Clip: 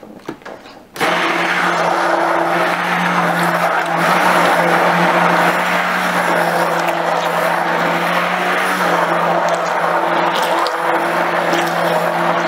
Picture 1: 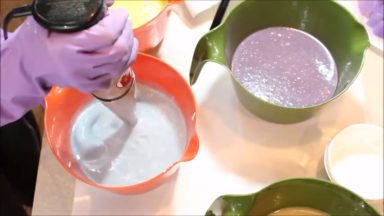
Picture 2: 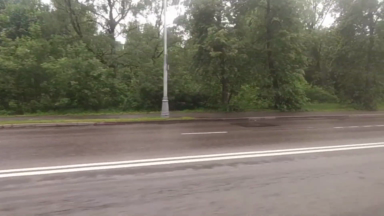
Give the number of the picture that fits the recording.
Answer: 1